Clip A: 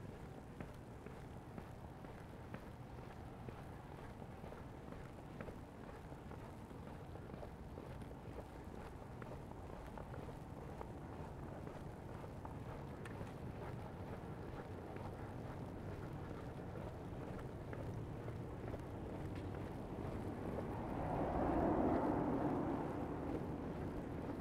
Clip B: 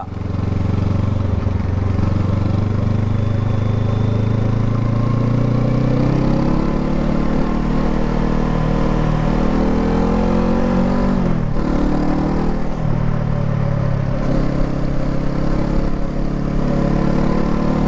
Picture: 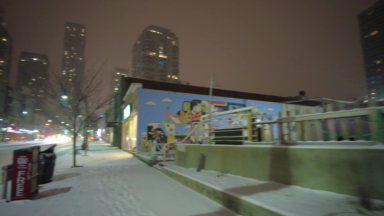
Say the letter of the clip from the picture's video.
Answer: A